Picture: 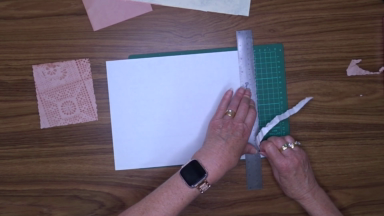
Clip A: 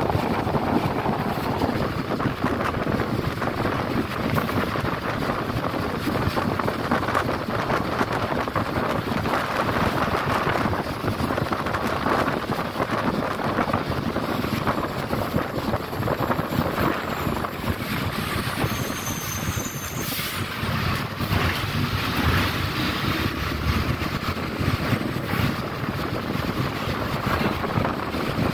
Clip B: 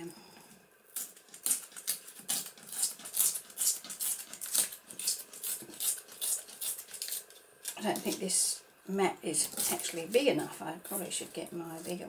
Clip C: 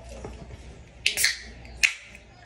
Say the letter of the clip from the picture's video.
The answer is B